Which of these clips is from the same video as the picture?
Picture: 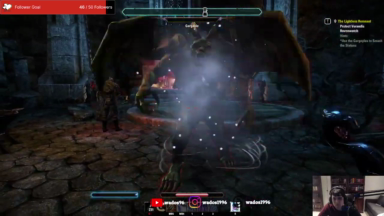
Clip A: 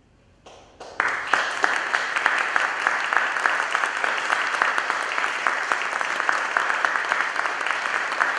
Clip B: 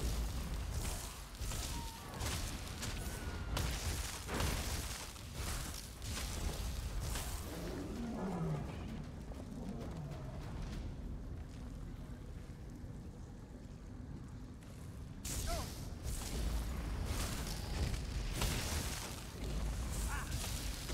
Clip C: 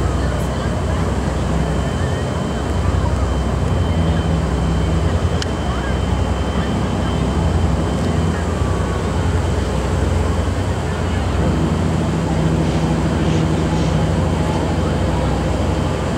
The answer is B